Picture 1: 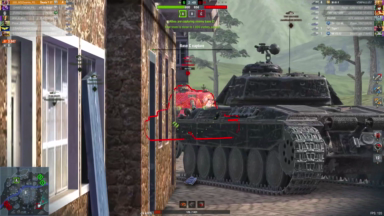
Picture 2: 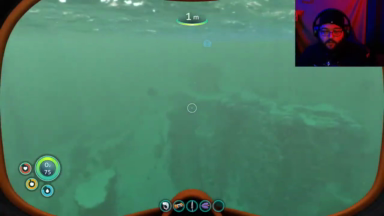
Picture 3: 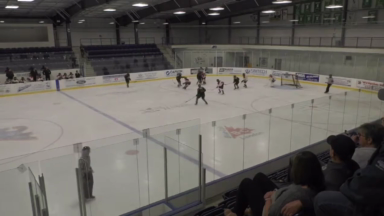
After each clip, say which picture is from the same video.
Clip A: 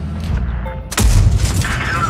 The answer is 1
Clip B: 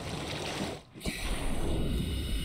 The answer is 2